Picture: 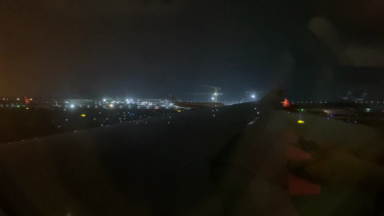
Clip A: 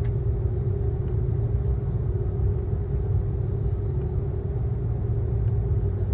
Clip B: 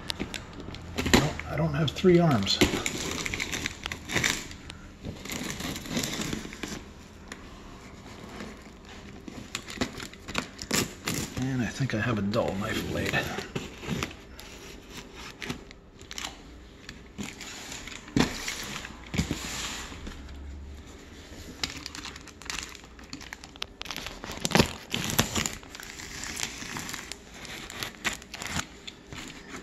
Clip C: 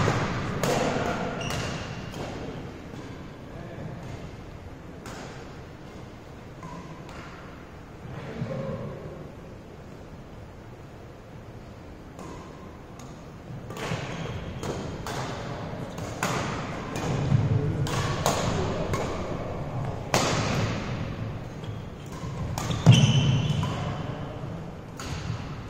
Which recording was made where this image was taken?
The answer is A